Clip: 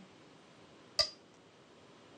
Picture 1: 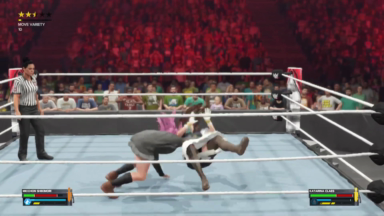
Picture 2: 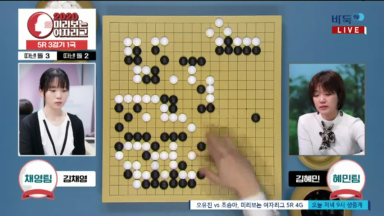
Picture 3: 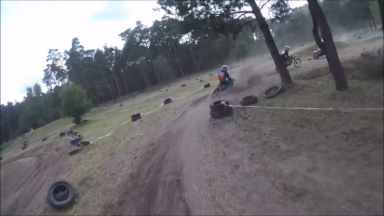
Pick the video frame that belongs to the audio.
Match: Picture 2